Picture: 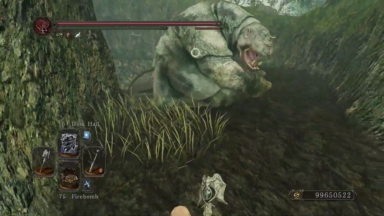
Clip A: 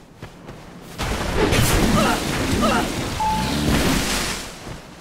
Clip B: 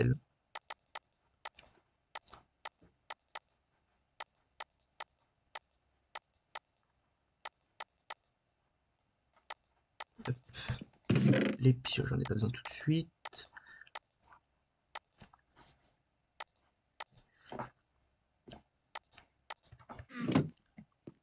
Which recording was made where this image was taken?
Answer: A